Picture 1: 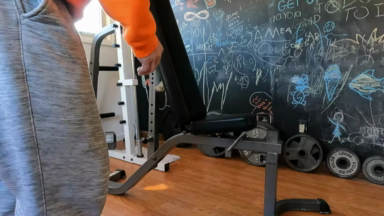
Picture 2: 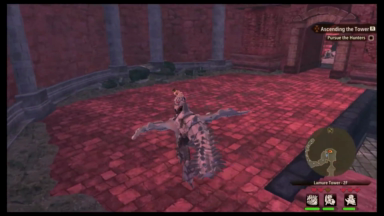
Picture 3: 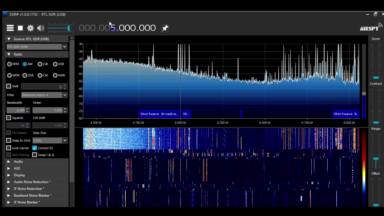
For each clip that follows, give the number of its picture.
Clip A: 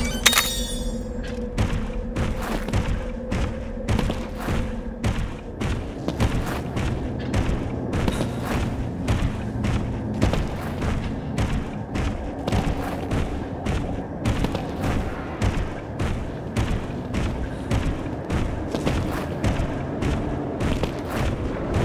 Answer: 2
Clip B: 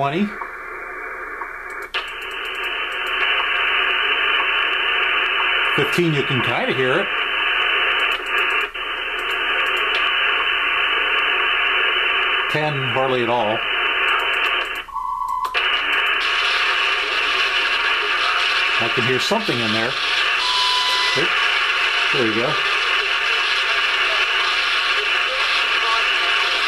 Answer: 3